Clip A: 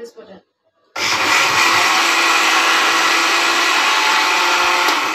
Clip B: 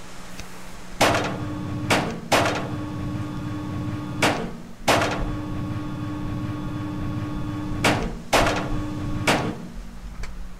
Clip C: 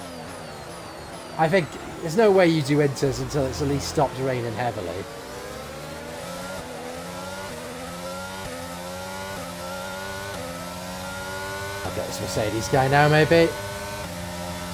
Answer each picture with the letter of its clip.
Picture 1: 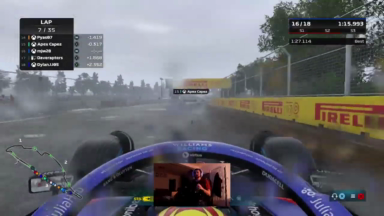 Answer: C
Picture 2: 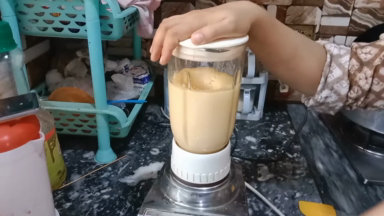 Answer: A